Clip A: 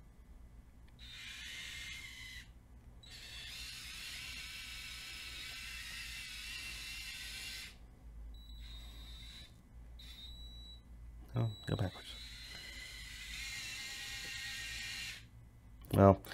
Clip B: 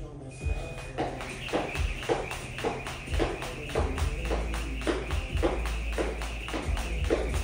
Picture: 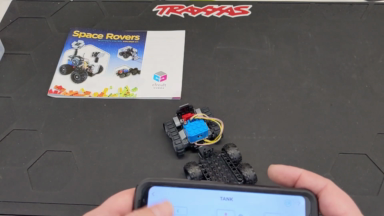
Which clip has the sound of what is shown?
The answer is A